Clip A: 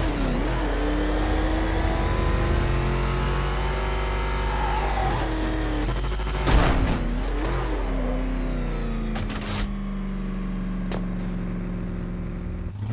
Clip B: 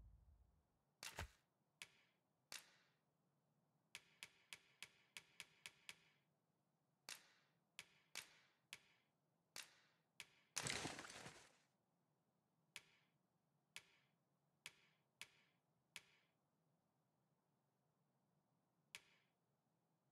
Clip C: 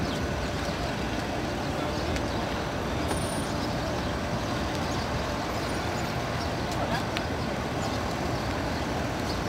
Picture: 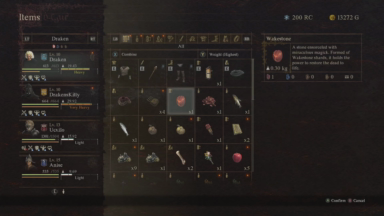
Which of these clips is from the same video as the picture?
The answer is B